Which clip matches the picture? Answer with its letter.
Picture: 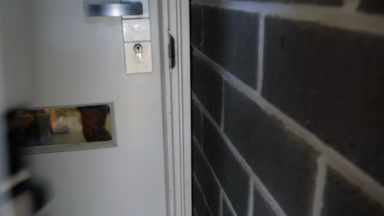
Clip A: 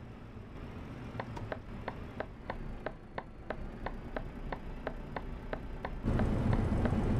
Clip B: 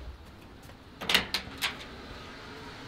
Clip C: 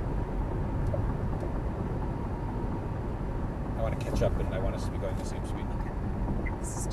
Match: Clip B